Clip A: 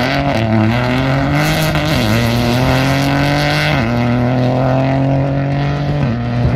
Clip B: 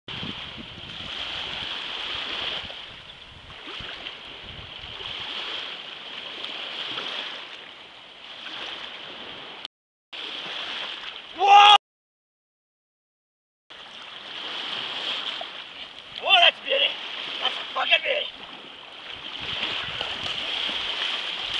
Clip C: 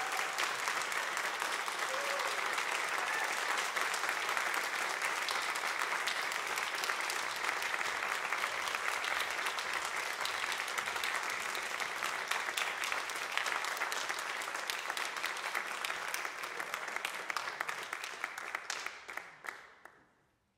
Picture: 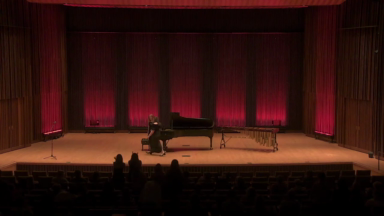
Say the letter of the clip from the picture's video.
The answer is C